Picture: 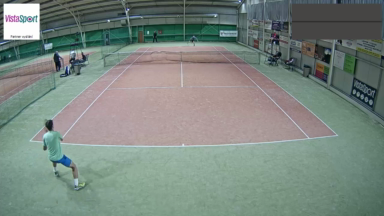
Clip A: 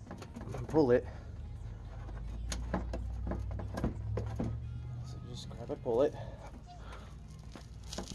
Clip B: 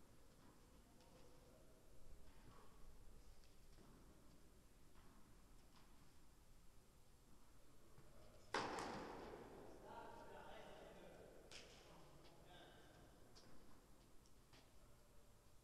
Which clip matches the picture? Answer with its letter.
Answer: B